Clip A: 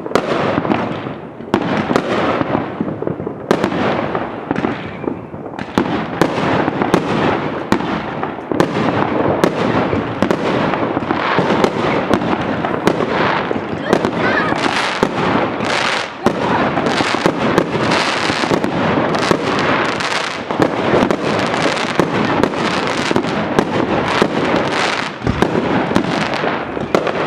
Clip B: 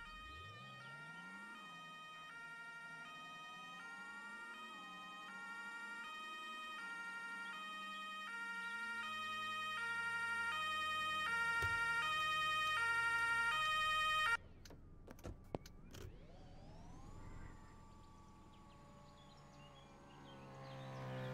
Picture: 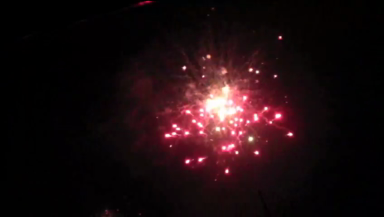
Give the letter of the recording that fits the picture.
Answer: A